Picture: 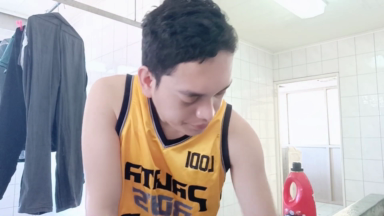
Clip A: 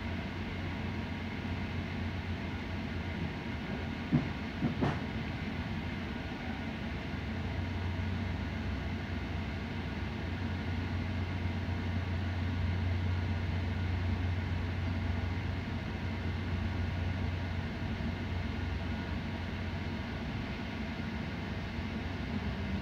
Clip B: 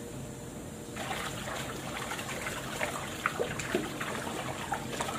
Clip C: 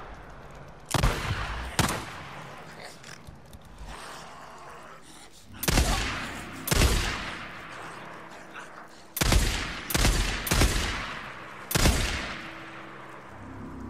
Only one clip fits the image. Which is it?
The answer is B